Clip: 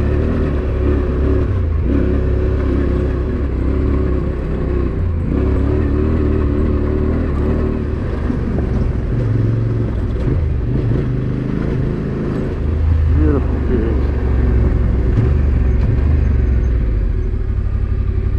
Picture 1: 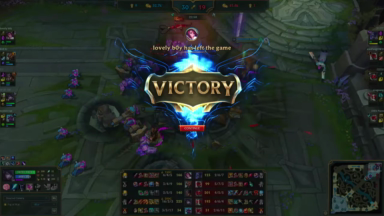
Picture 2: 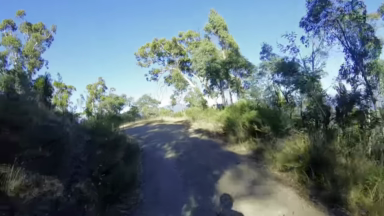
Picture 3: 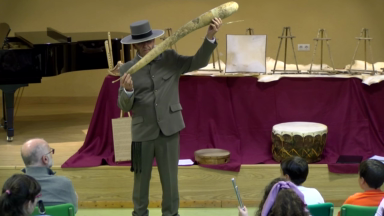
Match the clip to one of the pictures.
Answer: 2